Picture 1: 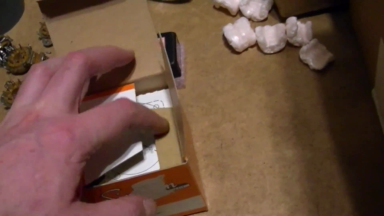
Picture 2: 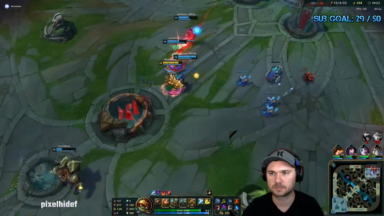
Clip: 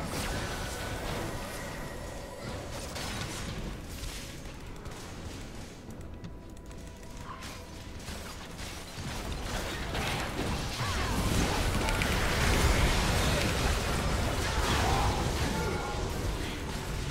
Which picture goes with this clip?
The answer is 2